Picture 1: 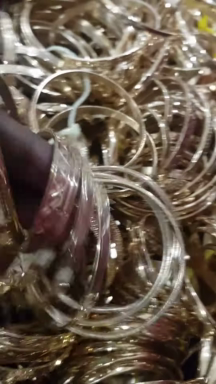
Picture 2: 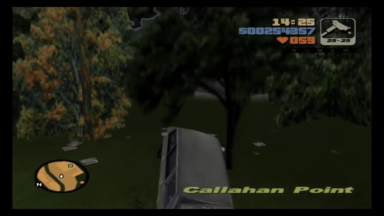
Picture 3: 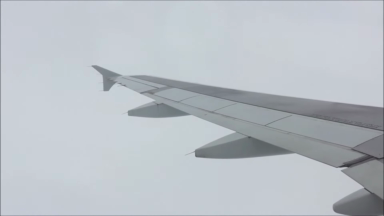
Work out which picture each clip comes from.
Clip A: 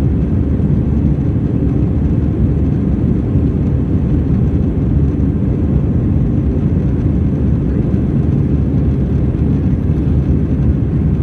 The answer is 3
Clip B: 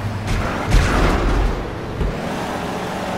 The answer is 2